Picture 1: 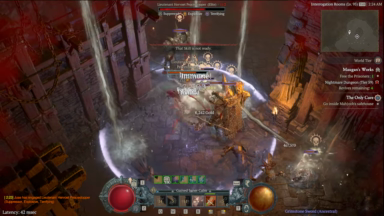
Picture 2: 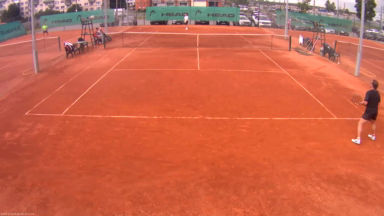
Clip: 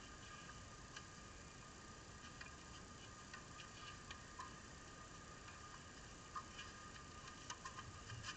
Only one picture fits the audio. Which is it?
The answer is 2